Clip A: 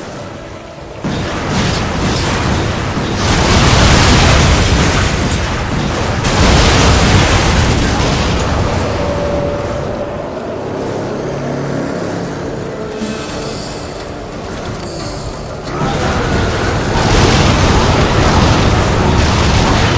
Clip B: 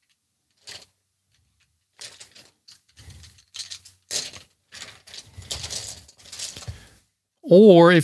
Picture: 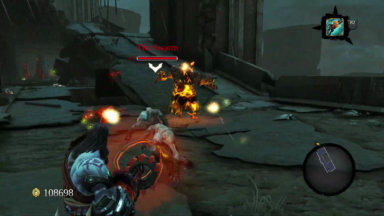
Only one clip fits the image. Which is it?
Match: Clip A